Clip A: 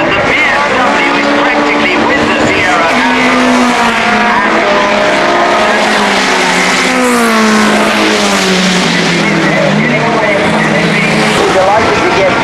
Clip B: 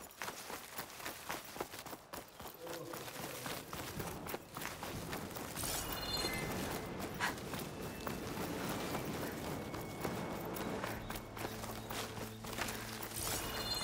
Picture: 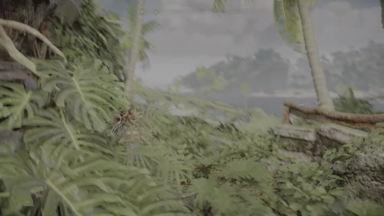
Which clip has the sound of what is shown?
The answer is B